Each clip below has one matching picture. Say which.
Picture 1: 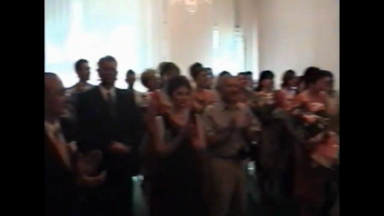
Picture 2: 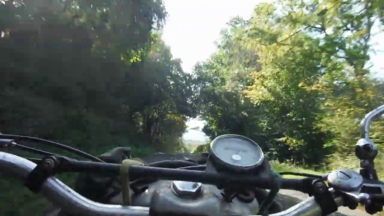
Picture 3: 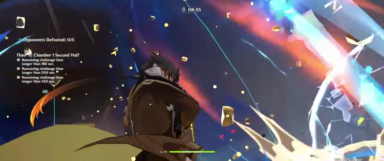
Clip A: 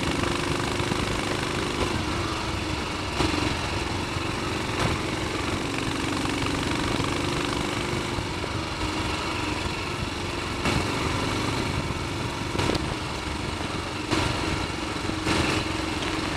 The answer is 2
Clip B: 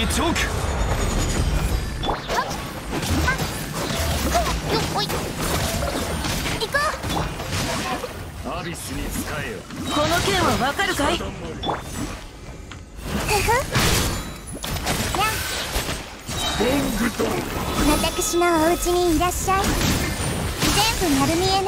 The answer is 3